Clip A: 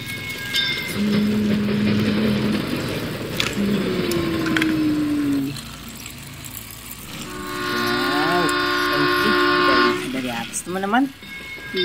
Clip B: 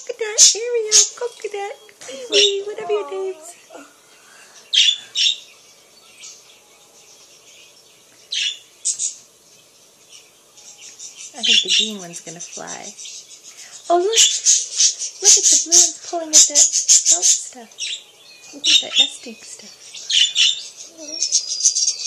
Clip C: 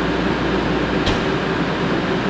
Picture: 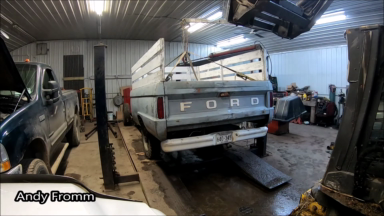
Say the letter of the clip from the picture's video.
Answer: C